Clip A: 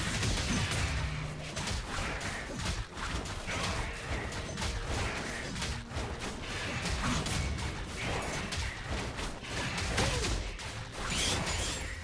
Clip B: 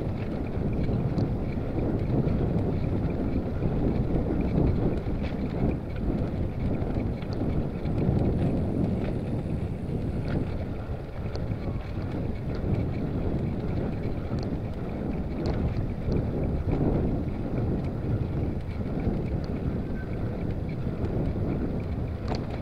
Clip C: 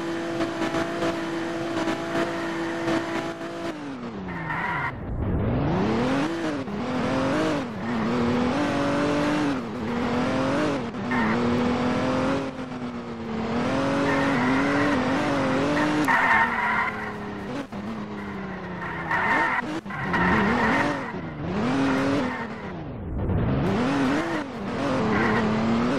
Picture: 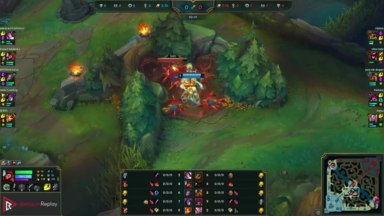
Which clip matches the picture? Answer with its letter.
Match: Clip A